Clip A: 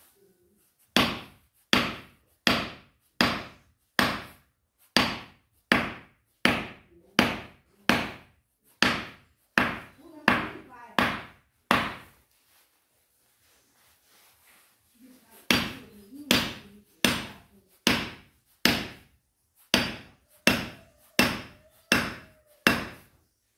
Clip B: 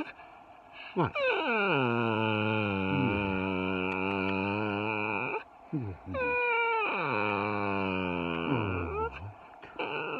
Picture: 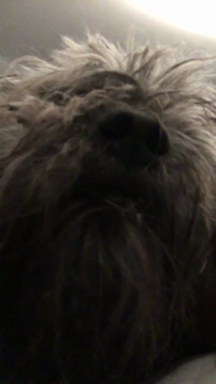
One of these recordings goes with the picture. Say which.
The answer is B